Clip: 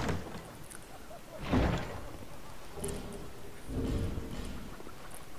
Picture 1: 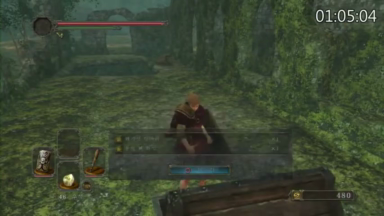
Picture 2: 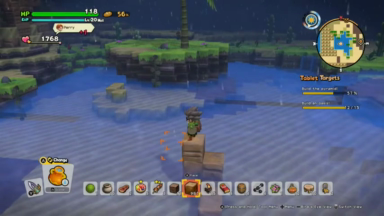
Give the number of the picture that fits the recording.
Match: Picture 1